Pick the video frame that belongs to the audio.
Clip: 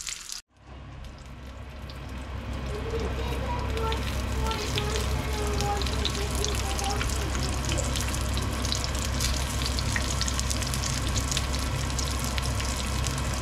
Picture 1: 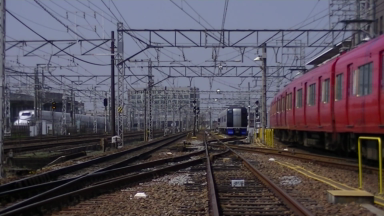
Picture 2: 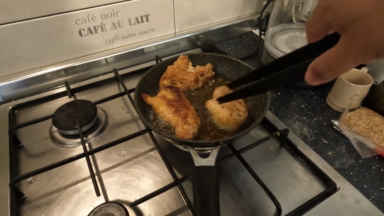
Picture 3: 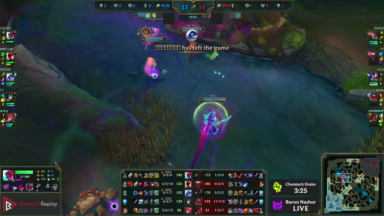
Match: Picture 2